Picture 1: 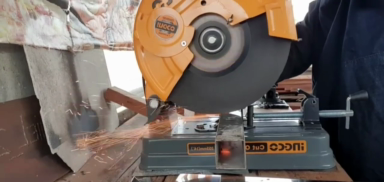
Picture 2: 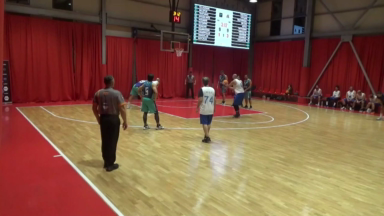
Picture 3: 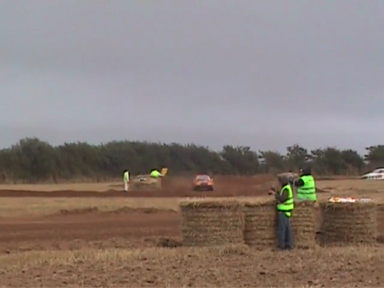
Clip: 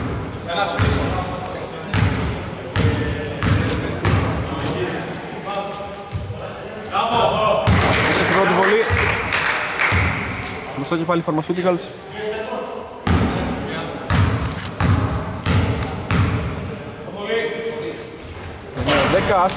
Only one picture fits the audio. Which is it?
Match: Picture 2